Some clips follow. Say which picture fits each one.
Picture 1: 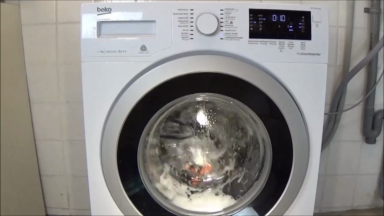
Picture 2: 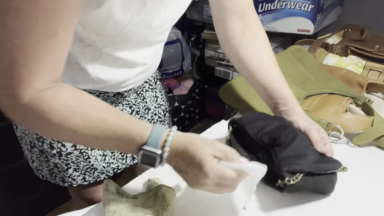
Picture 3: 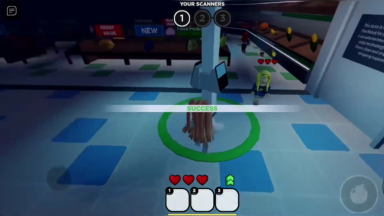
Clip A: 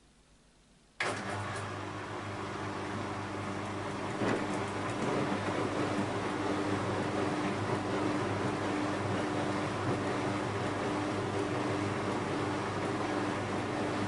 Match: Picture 1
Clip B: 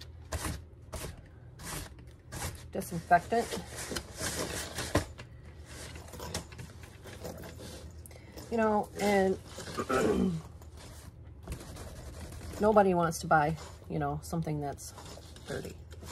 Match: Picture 2